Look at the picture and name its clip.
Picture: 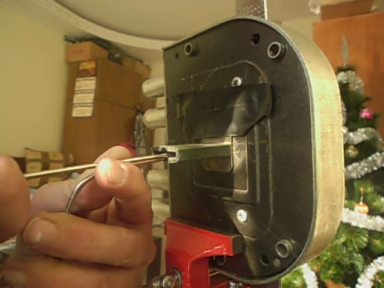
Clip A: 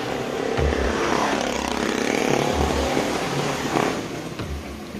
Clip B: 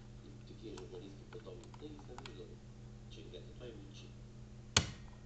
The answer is B